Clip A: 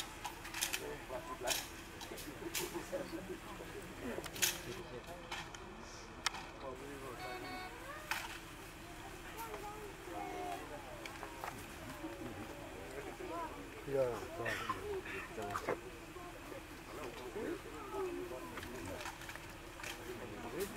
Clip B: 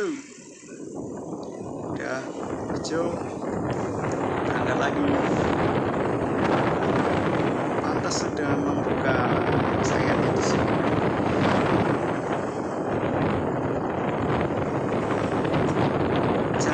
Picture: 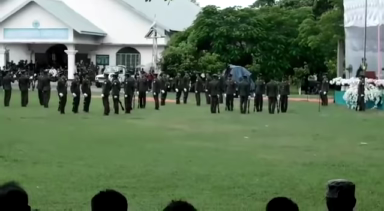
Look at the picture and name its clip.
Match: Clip A